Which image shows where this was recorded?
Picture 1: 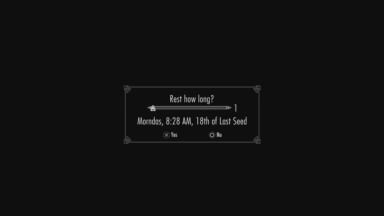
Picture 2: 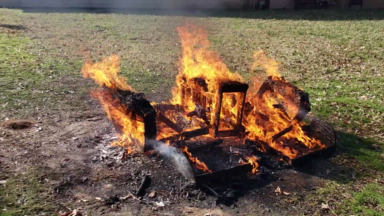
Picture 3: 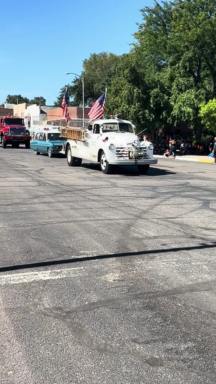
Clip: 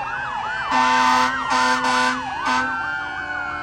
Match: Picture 3